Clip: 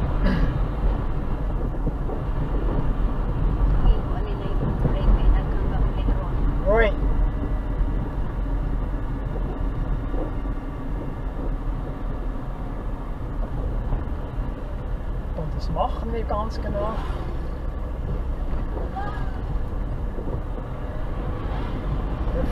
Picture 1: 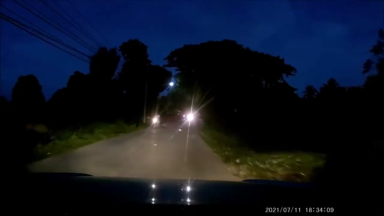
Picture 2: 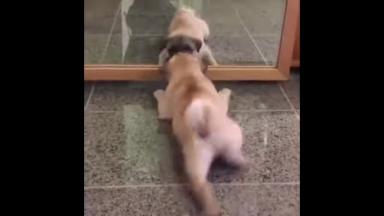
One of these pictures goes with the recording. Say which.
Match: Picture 1